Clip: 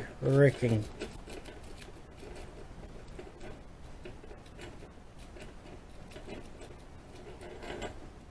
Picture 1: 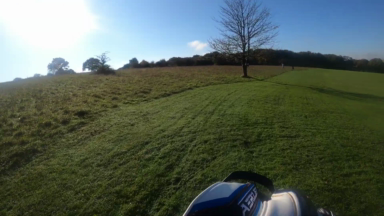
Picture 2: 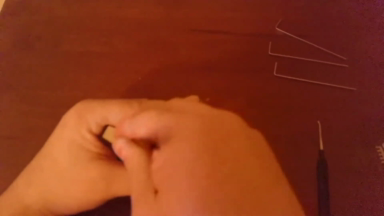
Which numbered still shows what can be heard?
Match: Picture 2